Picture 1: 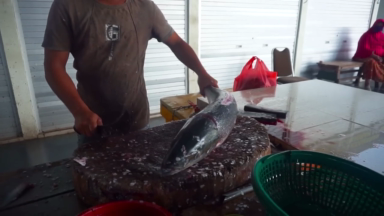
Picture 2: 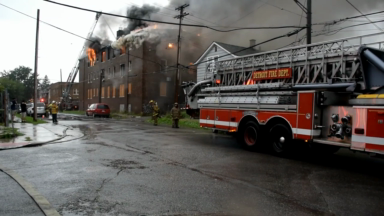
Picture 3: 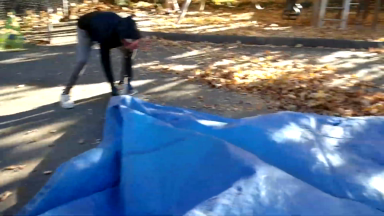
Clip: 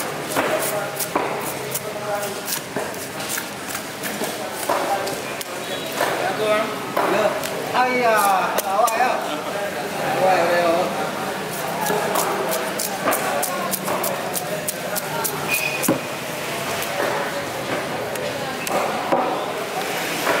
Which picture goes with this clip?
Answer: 1